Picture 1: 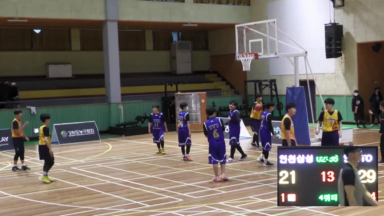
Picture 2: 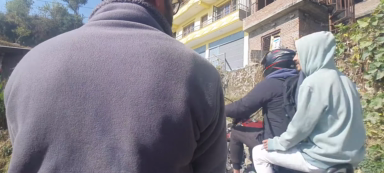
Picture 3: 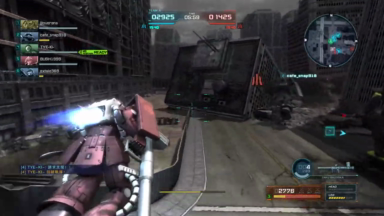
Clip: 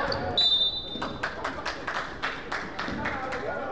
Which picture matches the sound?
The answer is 1